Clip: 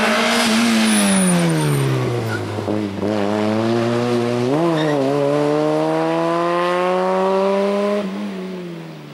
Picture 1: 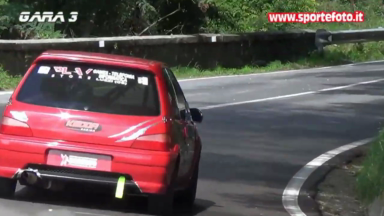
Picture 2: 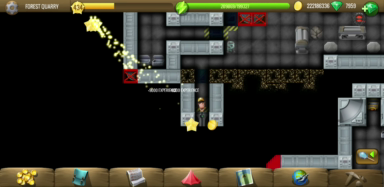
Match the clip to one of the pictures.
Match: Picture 1